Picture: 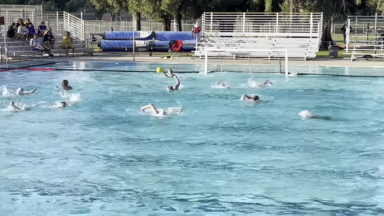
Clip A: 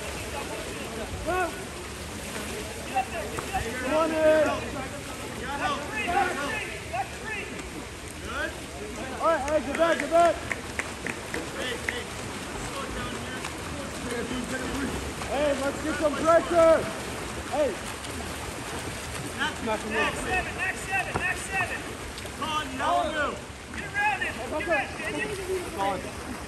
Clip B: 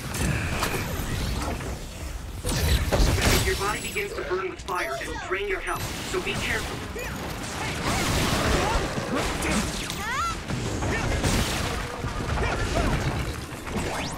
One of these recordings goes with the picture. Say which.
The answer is A